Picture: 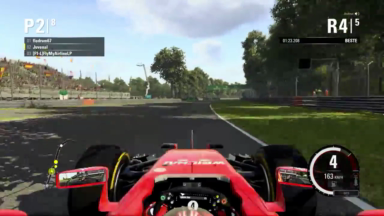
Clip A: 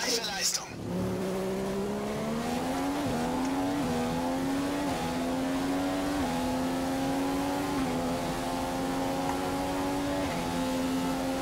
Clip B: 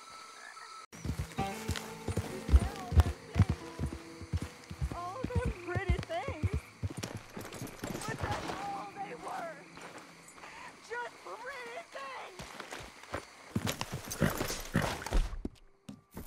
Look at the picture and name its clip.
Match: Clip A